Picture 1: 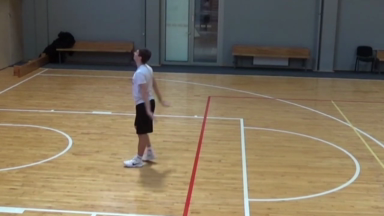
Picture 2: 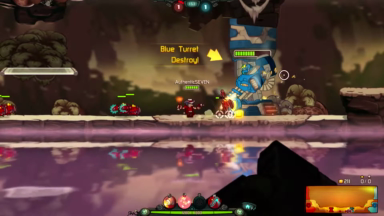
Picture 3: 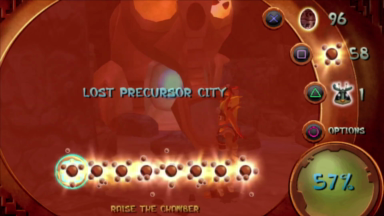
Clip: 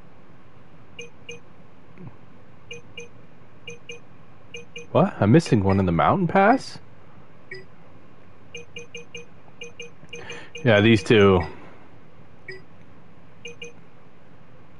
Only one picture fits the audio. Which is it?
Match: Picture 3